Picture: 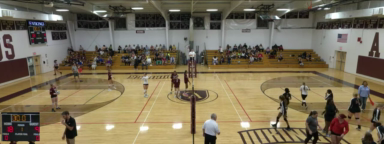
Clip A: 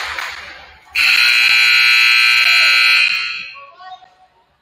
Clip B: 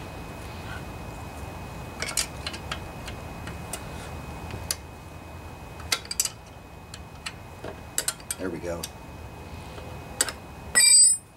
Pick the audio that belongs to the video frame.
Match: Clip A